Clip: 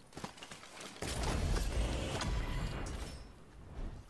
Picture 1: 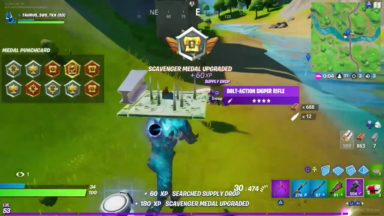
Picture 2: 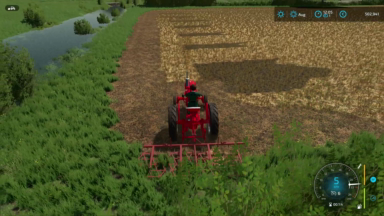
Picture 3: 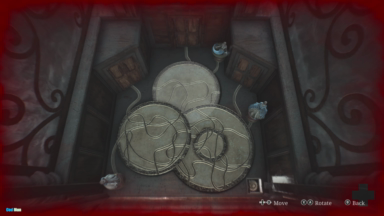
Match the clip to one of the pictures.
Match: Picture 1